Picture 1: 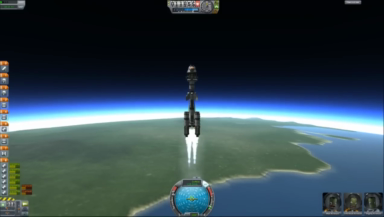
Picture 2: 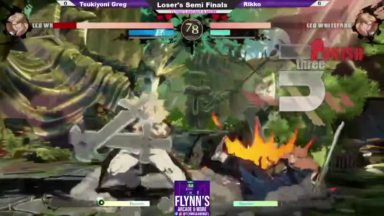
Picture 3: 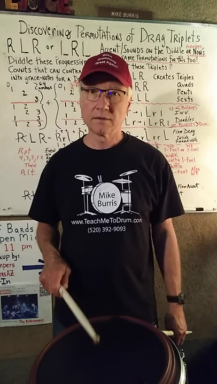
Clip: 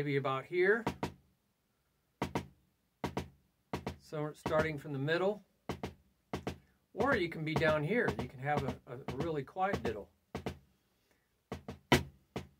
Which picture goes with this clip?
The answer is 3